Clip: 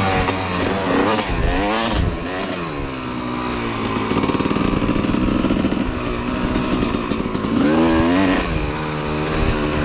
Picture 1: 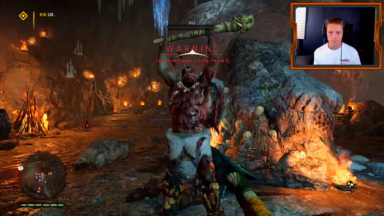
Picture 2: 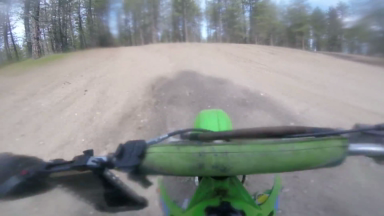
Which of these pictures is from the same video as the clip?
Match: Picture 2